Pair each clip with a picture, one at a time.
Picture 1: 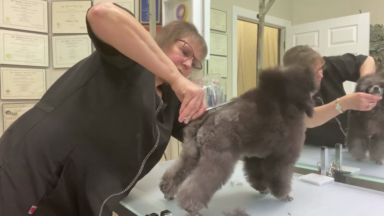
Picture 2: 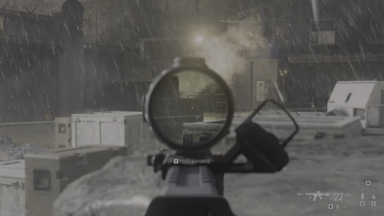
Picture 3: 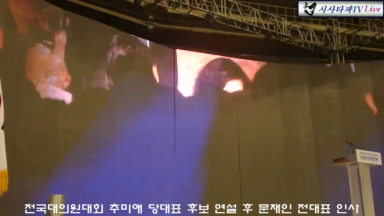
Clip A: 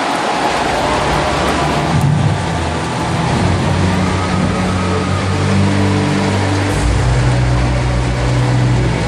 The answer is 3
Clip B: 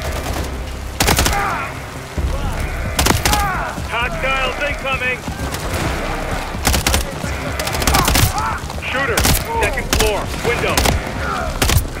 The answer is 2